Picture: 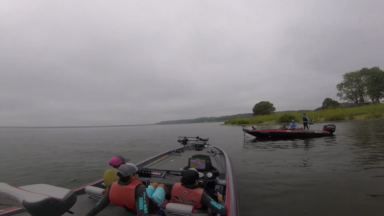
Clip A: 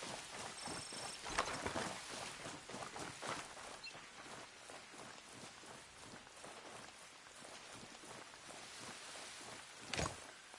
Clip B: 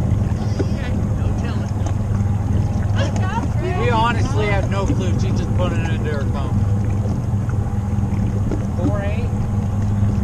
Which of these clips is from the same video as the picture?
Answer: B